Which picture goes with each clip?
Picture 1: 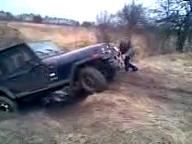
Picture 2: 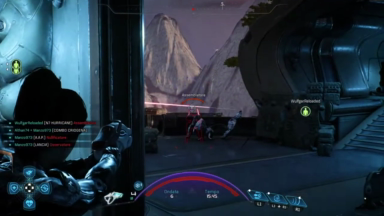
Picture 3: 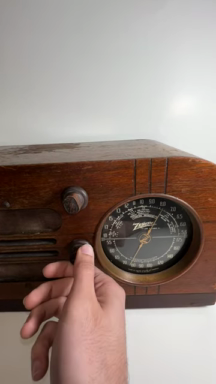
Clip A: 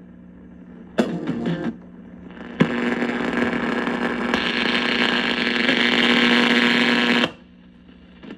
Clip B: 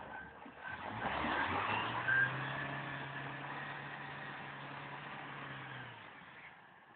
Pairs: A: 3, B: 1